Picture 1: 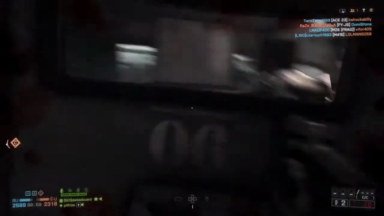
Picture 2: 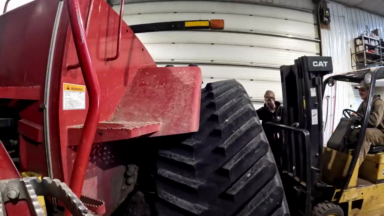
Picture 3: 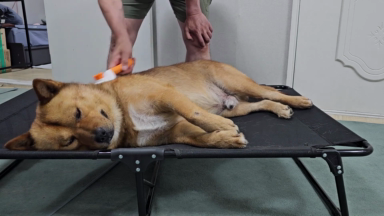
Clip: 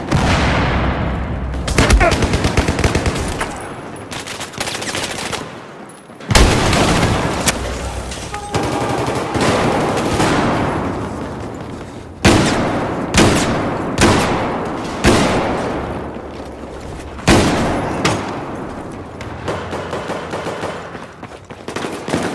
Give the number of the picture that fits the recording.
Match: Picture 1